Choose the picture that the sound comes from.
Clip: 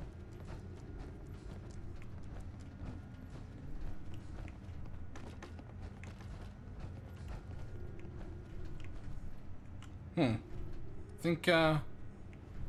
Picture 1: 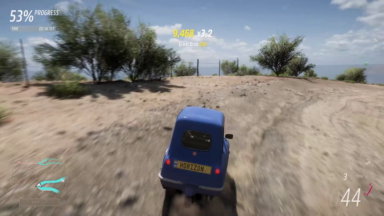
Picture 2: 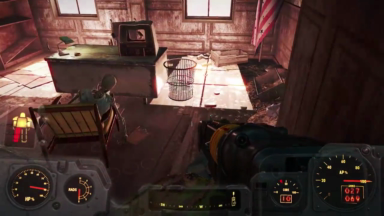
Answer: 2